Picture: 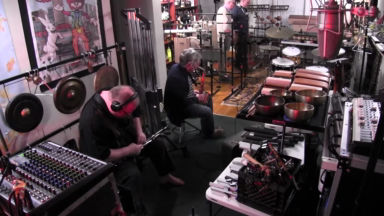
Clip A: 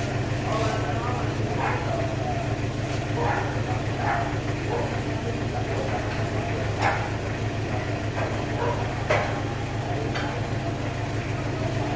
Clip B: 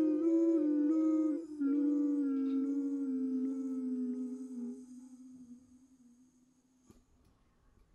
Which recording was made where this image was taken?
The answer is B